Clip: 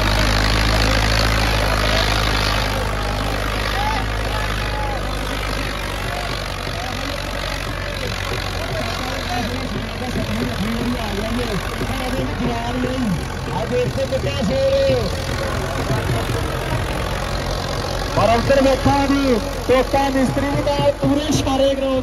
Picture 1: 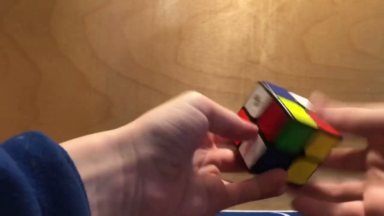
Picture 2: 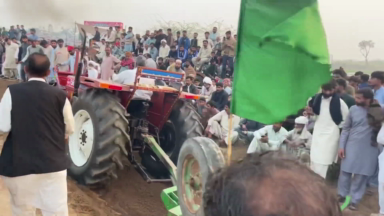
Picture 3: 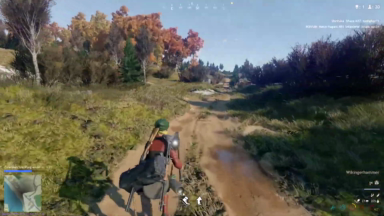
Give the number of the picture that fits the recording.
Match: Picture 2